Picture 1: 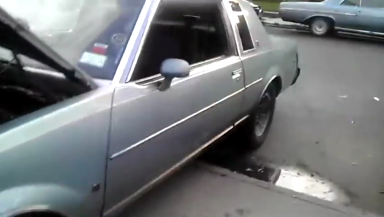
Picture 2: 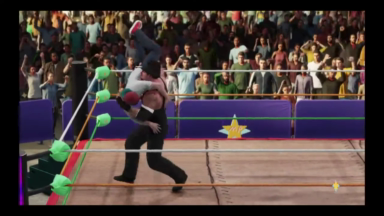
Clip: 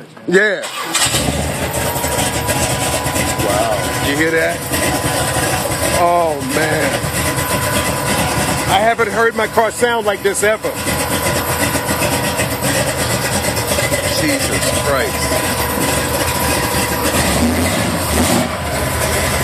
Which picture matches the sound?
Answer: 1